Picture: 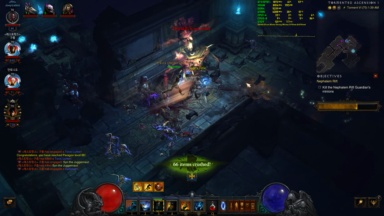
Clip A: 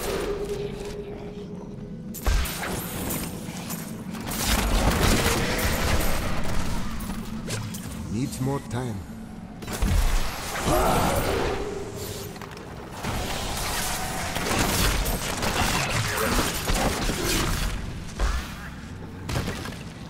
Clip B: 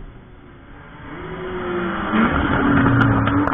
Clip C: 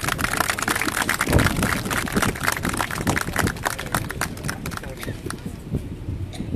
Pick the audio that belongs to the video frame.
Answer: A